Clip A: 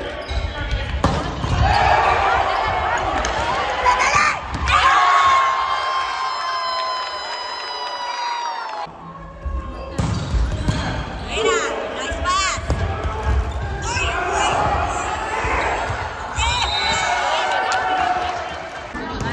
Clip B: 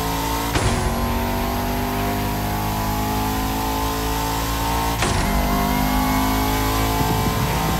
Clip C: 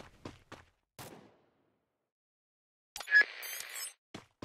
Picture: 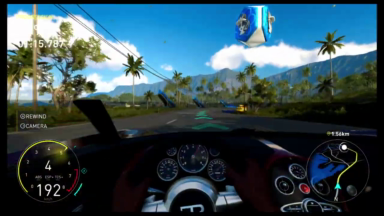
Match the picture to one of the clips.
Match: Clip B